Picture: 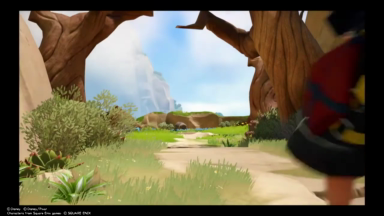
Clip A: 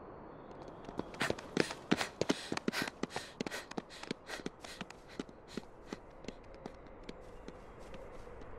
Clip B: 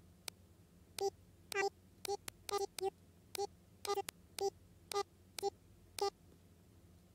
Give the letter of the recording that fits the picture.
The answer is A